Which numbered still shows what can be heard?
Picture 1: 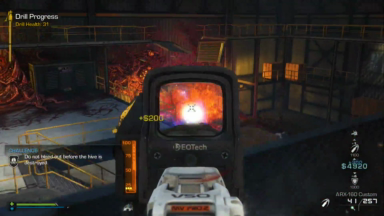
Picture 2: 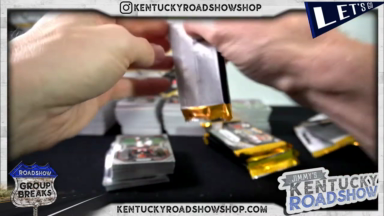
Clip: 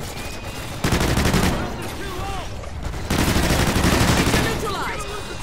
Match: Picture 1